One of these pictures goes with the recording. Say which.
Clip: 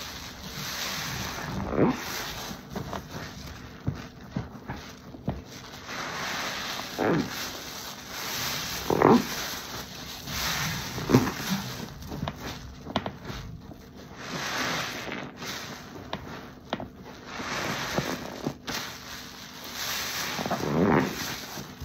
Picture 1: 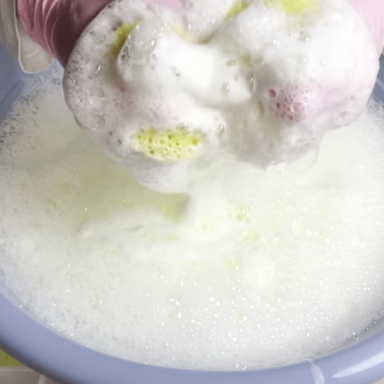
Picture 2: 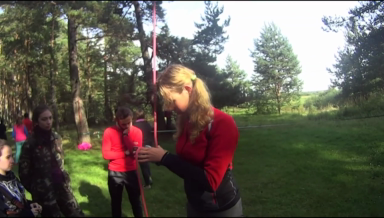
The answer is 1